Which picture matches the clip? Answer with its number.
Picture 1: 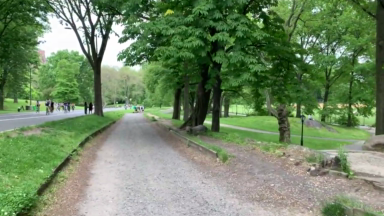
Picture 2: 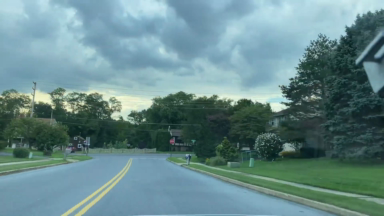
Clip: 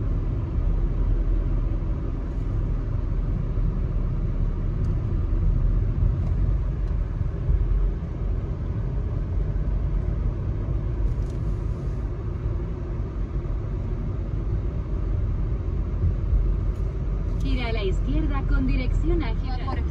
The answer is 2